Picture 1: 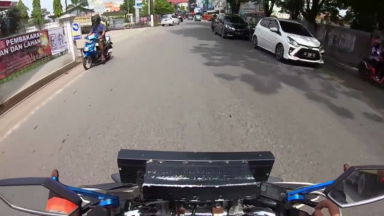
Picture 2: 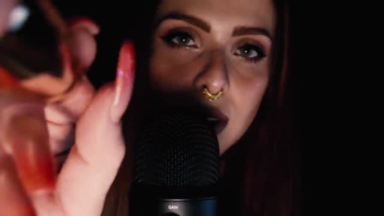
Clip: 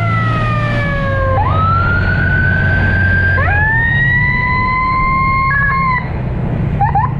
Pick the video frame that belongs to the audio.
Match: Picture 1